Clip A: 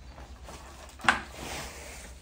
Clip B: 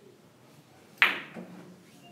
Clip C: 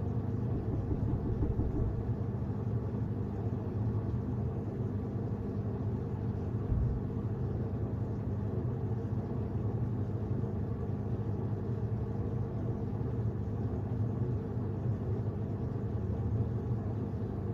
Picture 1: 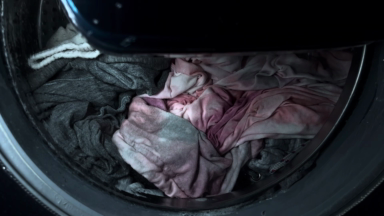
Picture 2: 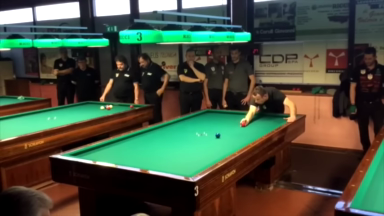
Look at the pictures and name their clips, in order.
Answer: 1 C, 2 B